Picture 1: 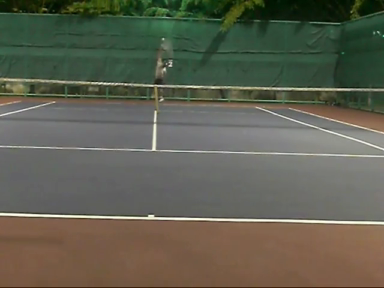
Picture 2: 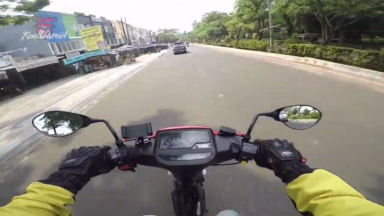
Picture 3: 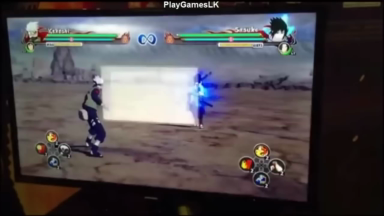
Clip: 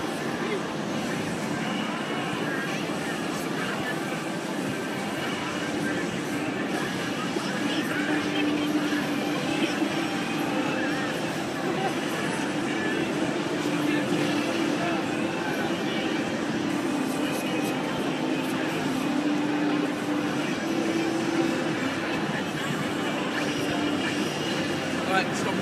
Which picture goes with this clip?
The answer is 3